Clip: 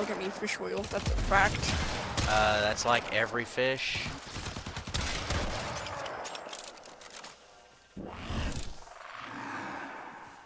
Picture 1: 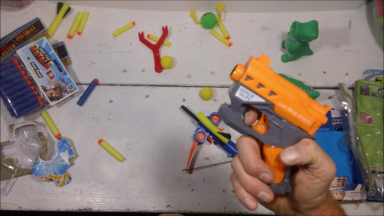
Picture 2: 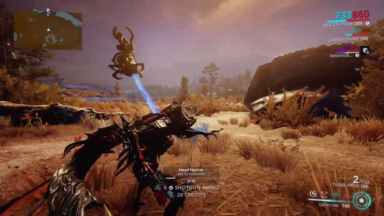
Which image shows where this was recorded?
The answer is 2